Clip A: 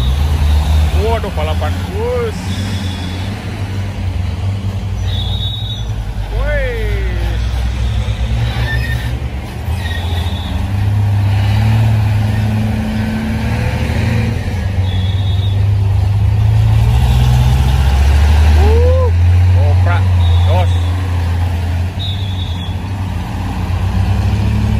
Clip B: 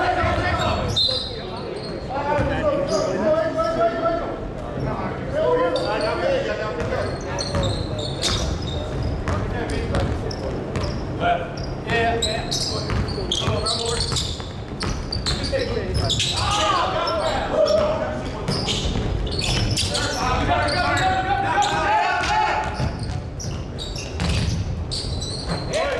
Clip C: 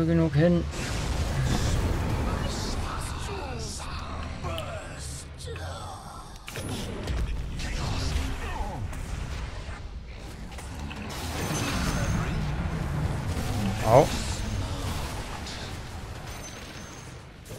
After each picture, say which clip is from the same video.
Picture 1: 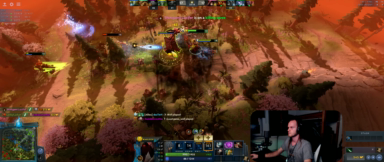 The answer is C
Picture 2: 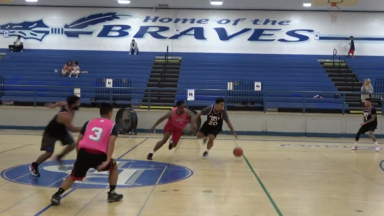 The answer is B